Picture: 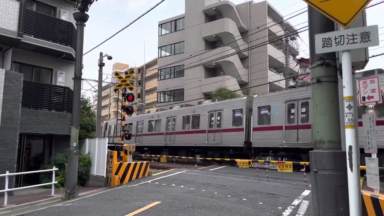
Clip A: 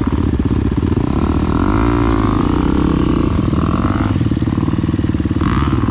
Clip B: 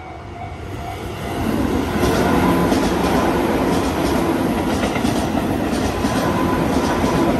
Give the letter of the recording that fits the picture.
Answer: B